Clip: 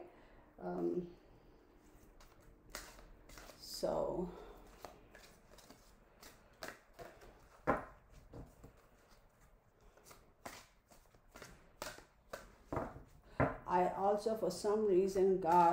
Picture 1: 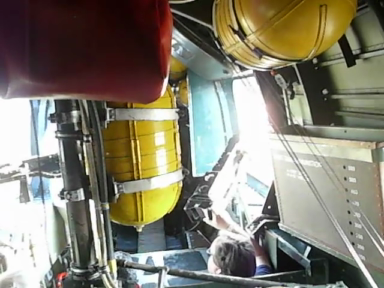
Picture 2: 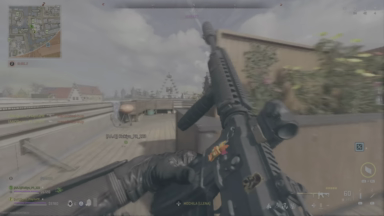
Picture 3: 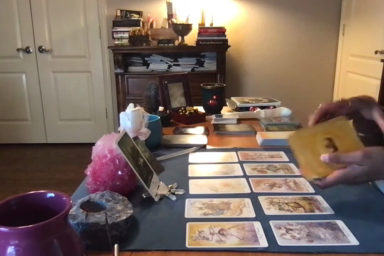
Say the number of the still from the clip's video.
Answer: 3